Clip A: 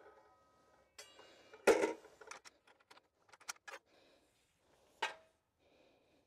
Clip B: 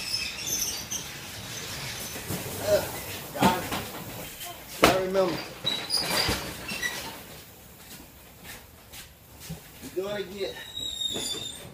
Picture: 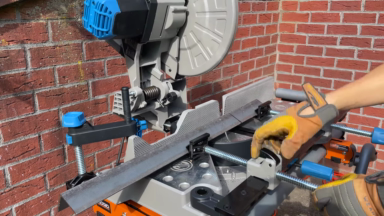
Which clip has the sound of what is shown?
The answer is A